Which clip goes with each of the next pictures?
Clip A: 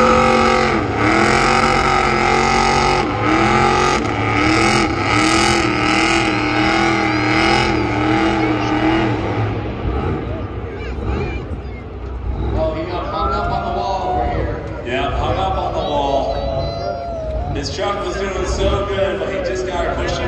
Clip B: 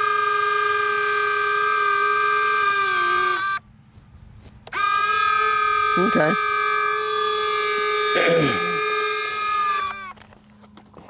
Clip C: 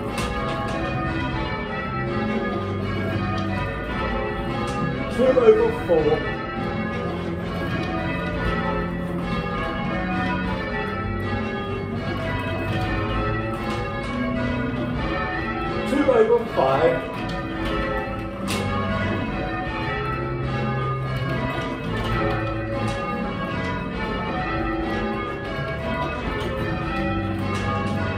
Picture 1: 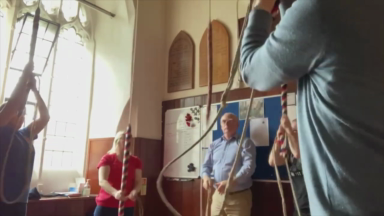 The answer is C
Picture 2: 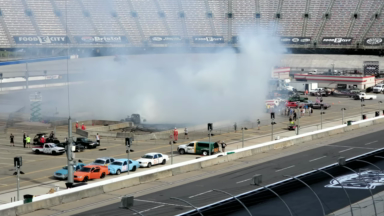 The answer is A